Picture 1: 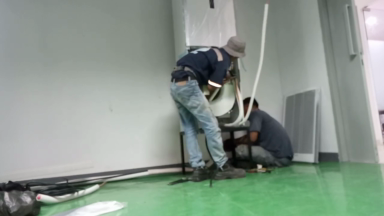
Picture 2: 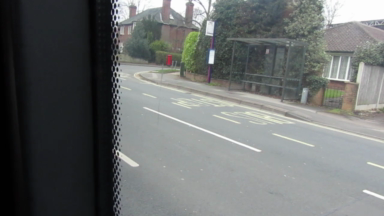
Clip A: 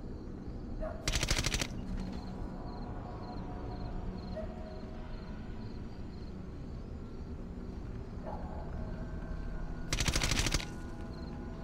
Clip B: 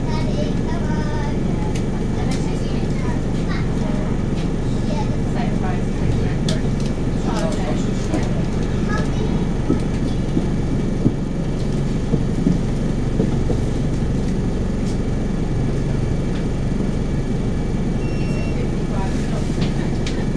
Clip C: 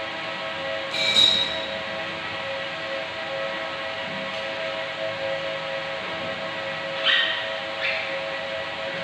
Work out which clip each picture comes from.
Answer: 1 C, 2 B